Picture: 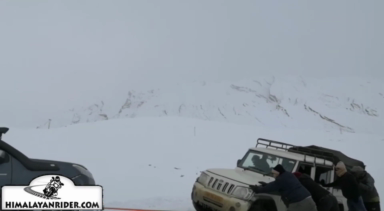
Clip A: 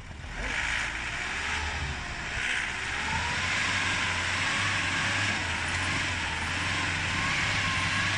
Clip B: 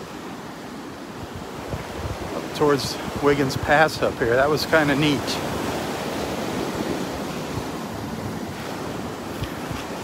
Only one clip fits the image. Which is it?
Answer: A